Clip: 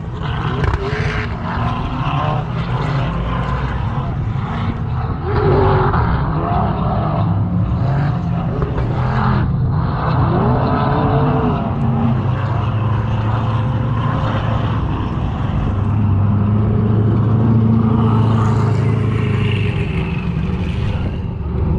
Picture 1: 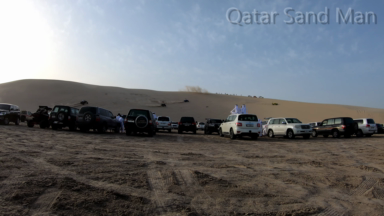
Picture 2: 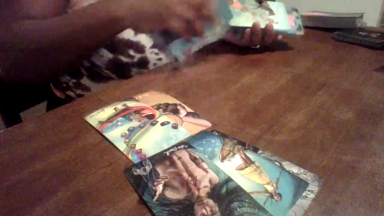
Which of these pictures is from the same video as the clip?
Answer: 1